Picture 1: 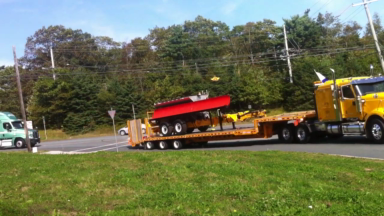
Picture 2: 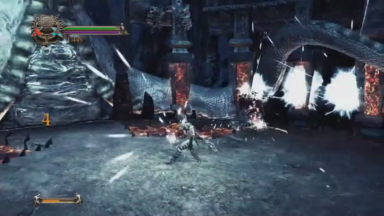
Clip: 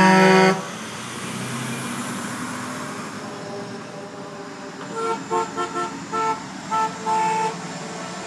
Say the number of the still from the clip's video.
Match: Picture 1